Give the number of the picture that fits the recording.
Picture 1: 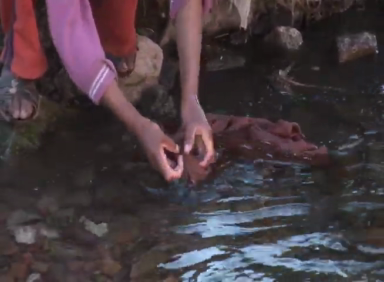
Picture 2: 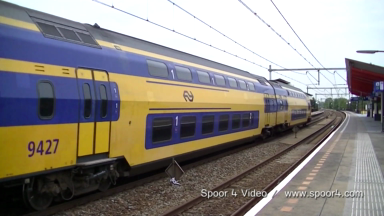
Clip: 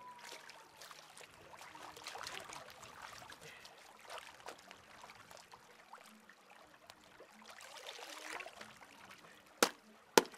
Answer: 1